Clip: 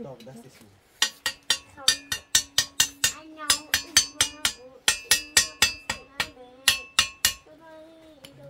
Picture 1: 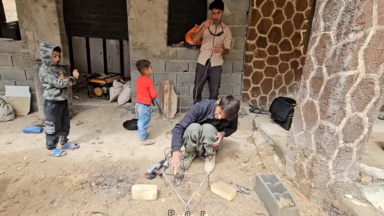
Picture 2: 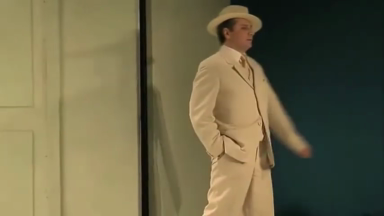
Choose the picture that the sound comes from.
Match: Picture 1